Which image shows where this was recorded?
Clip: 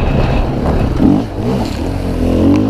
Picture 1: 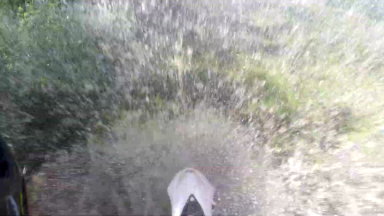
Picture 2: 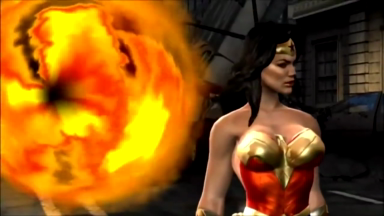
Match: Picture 1